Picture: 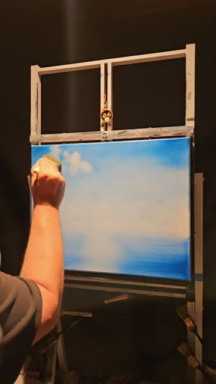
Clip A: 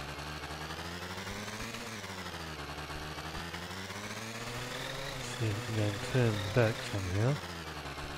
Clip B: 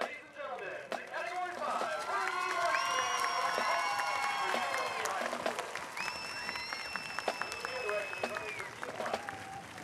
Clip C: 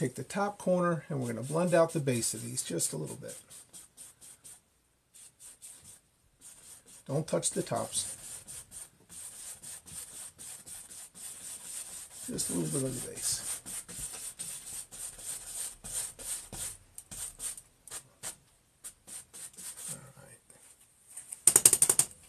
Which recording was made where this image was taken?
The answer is C